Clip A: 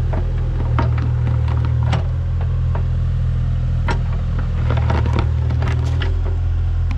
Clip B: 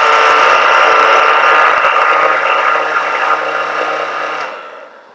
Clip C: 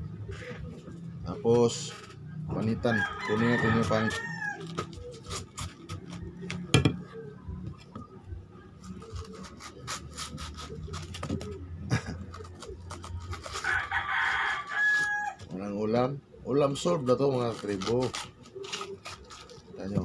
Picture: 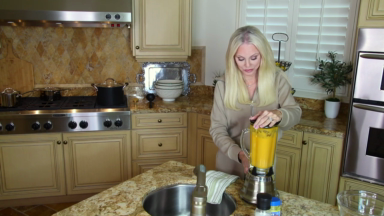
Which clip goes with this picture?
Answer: B